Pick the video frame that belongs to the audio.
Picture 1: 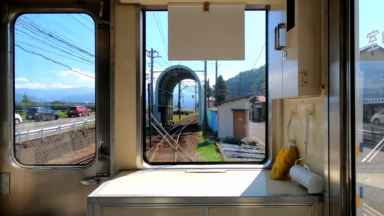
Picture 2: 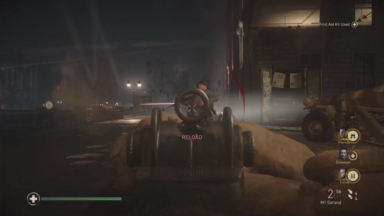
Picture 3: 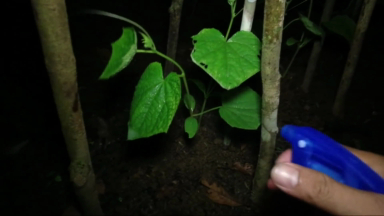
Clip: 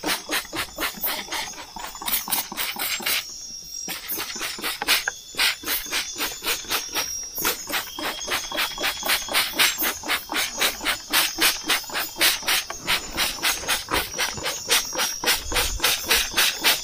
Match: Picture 3